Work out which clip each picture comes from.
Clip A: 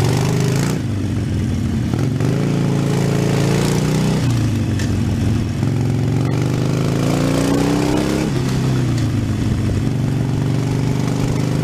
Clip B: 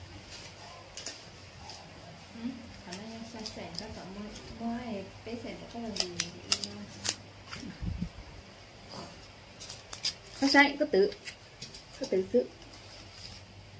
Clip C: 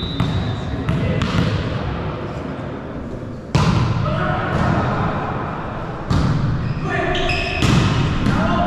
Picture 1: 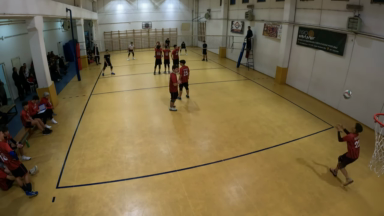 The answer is C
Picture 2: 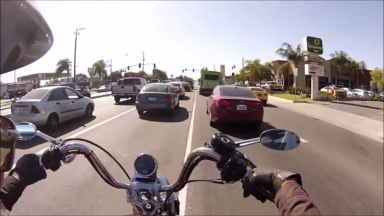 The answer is A